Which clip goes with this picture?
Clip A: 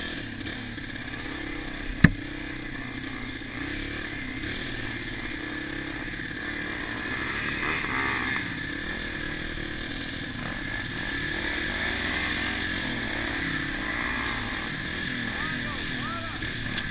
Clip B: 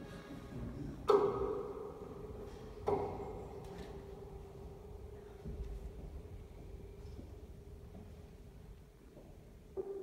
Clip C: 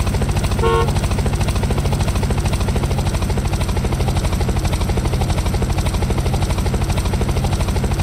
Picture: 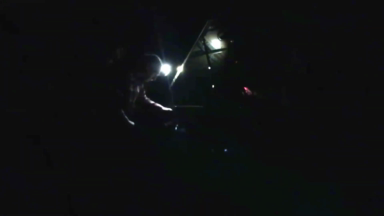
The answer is B